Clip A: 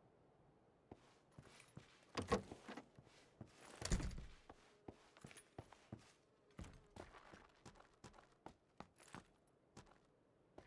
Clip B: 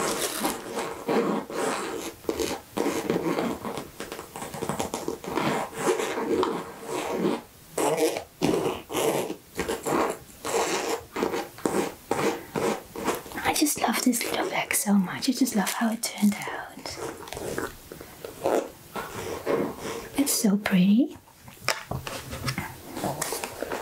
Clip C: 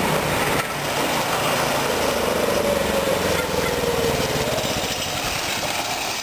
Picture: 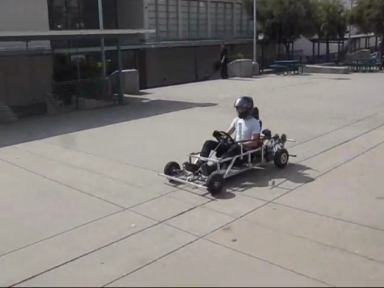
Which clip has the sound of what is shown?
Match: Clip C